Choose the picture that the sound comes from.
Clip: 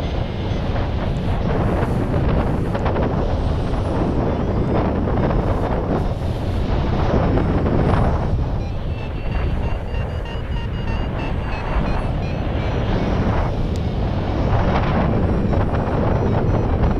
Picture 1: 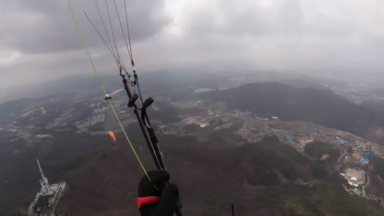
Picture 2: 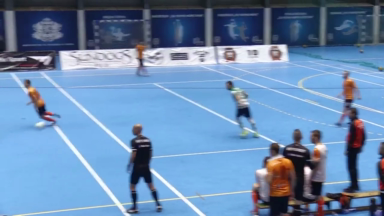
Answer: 1